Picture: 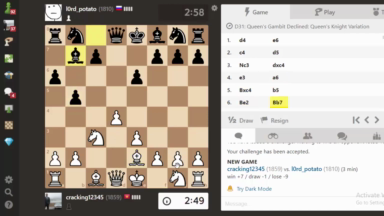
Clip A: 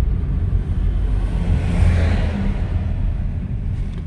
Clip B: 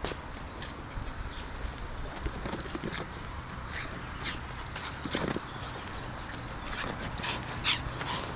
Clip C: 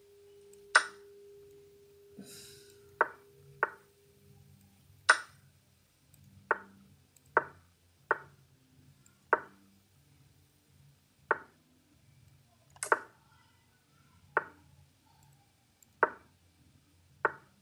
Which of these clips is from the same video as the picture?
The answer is C